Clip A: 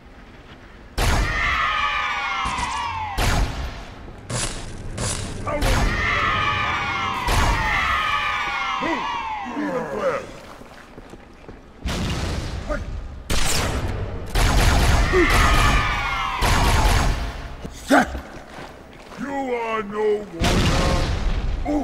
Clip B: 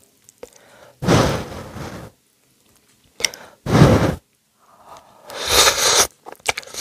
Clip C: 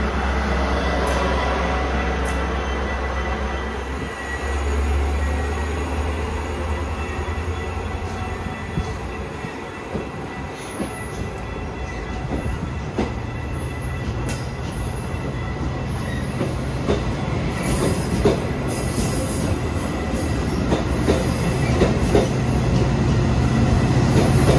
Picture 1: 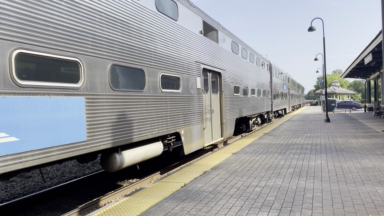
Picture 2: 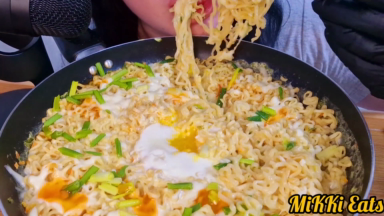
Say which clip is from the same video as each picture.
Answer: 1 C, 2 B